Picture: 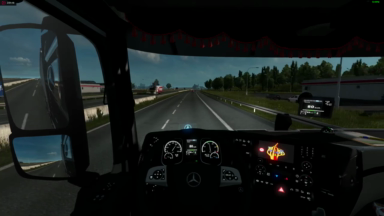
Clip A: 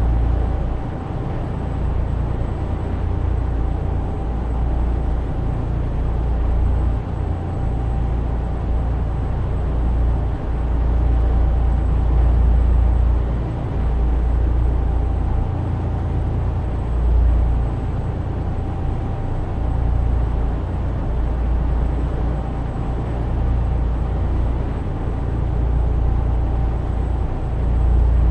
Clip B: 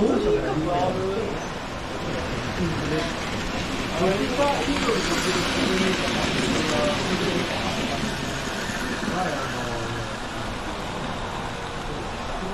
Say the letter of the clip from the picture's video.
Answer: A